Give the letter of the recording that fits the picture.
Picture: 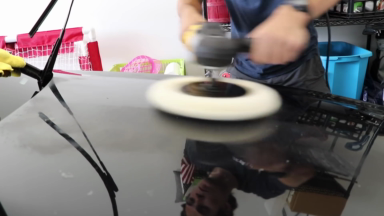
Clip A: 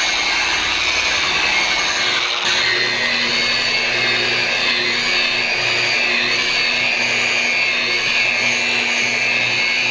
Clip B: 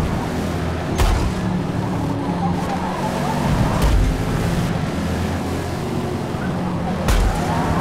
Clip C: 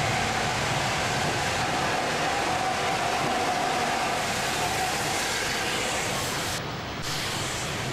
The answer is A